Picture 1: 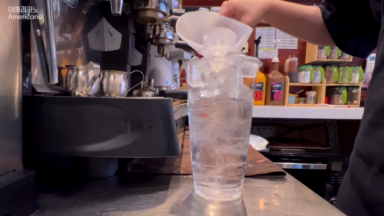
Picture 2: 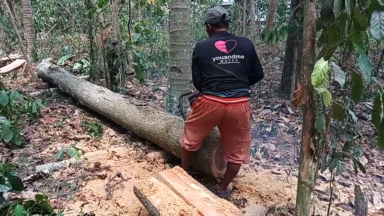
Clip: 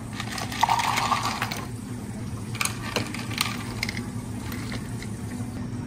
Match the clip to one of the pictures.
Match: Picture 1